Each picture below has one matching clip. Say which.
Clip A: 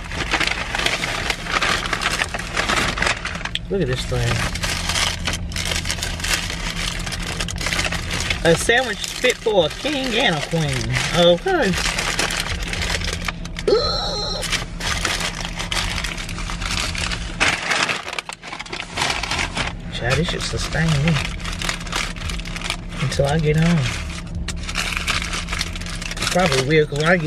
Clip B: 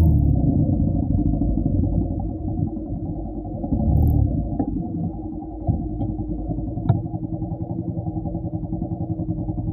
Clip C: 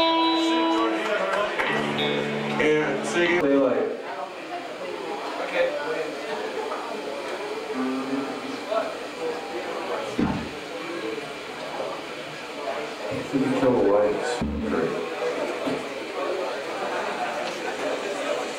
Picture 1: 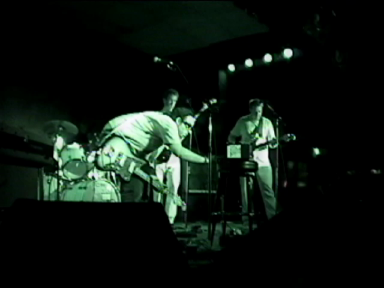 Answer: C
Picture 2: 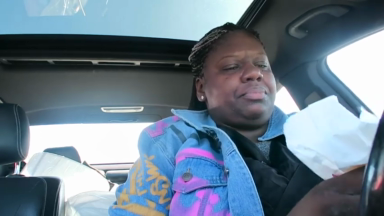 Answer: A